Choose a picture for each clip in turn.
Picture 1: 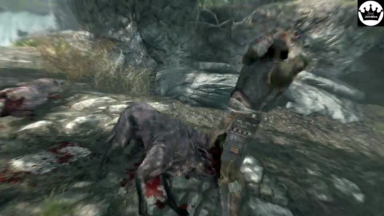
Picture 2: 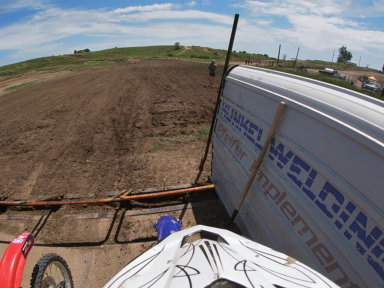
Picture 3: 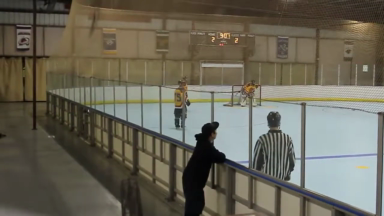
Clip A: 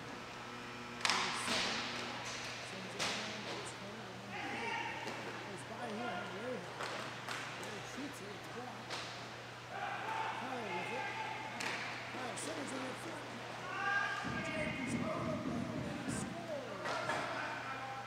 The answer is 3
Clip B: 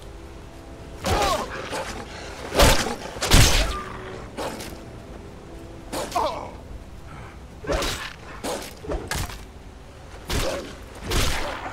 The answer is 1